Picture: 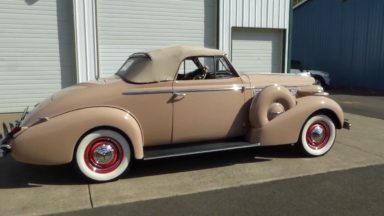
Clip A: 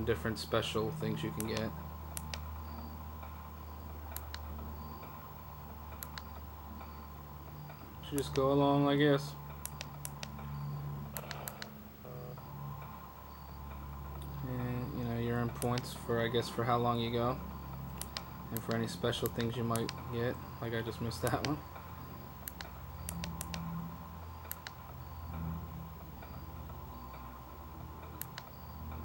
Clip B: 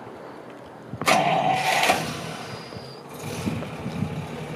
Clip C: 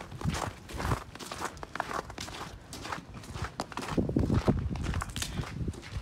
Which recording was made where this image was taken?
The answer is B